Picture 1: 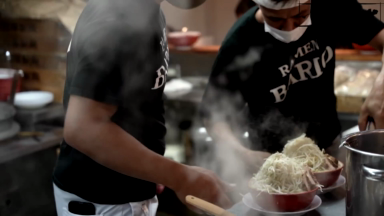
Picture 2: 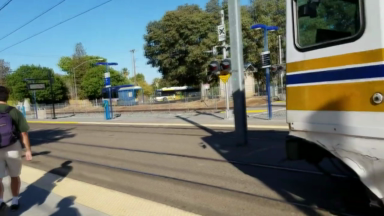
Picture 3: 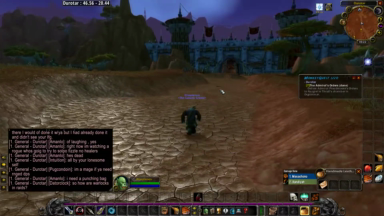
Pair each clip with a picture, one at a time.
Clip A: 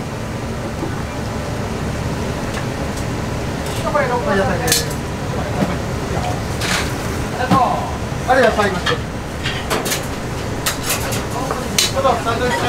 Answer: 1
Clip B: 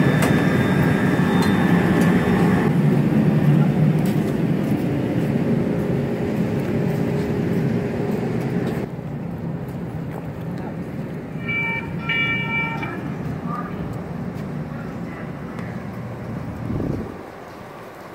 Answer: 2